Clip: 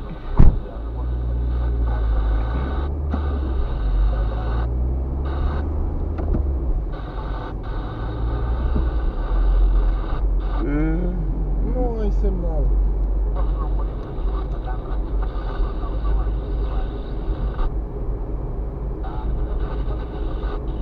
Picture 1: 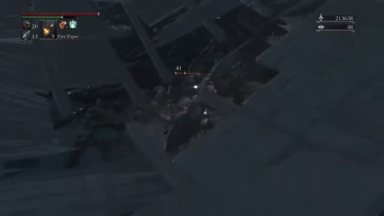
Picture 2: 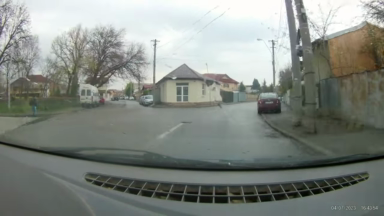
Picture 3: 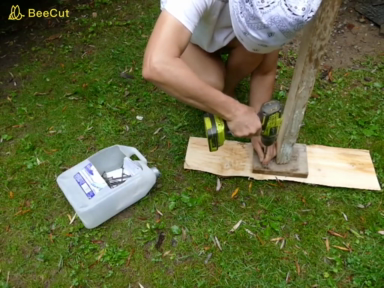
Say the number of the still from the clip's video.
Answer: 2